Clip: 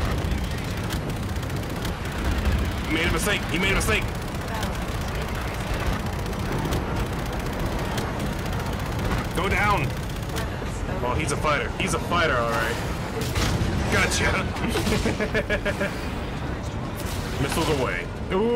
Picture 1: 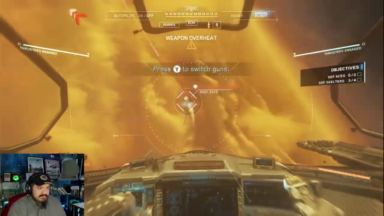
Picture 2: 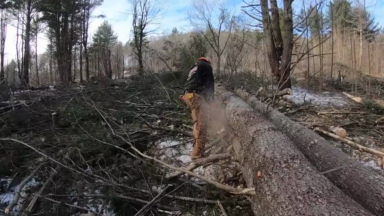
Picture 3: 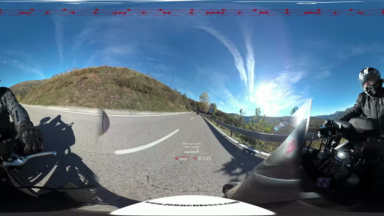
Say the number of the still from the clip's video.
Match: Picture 1